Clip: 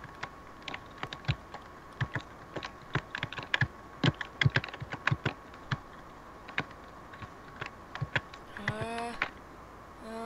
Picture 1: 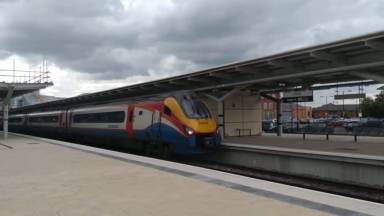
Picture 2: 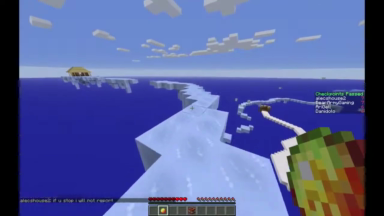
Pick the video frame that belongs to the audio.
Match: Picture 2